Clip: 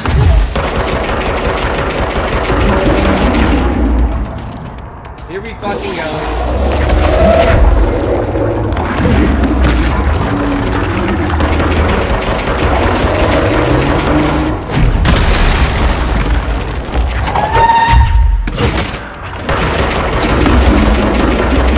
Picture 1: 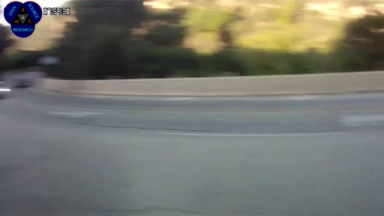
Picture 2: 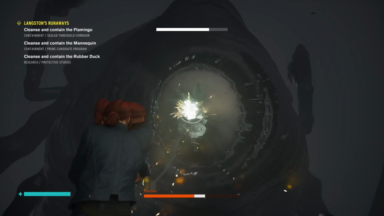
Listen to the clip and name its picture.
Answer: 2